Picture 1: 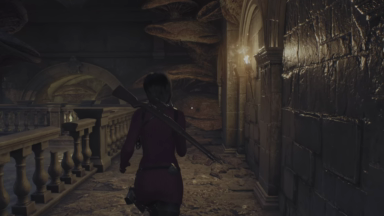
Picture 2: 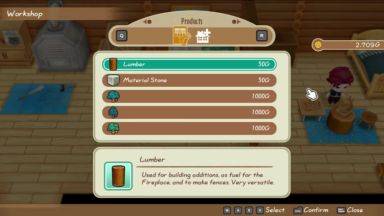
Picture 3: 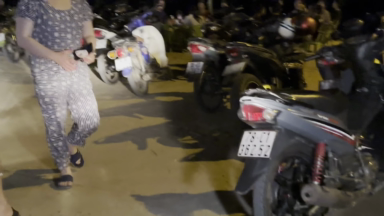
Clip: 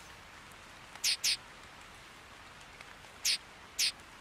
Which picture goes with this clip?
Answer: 2